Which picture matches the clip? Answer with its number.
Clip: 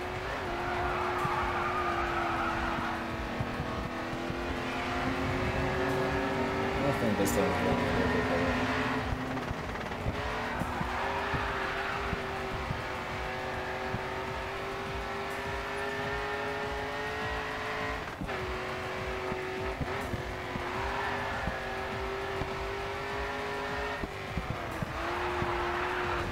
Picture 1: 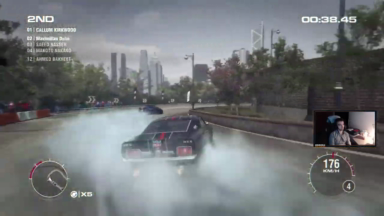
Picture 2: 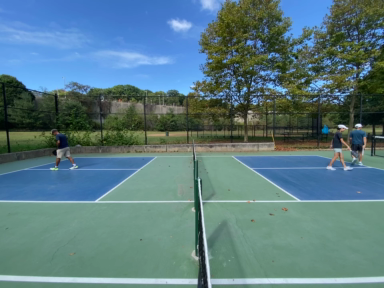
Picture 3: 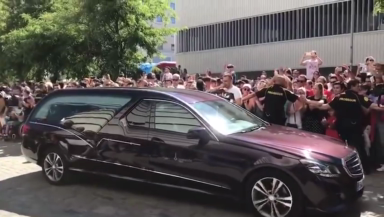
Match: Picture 1